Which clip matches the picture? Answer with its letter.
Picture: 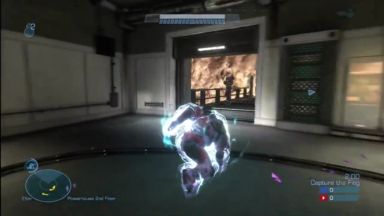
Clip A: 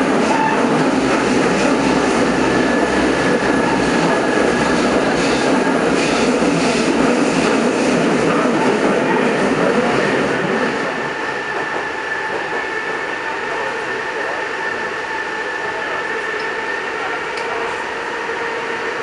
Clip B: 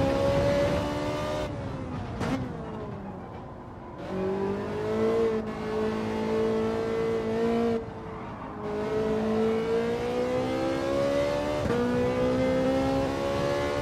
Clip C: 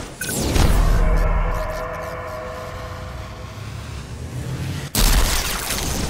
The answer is C